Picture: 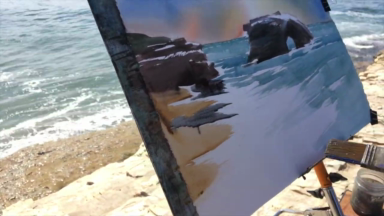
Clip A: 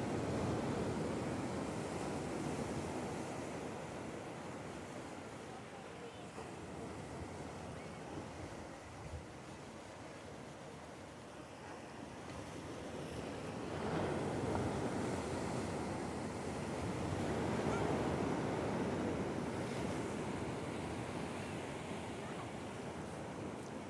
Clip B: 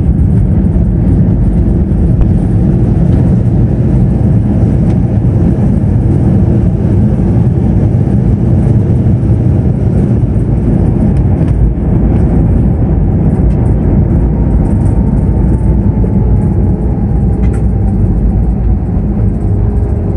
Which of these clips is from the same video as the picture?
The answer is A